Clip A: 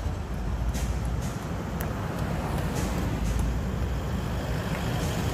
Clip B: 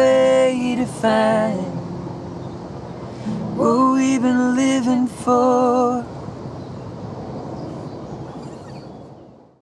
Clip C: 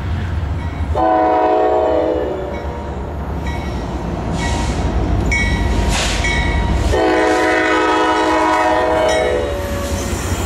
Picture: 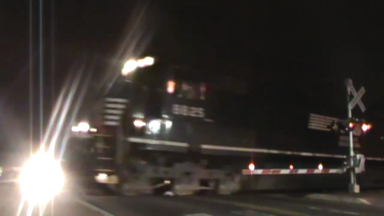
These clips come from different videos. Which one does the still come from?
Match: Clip C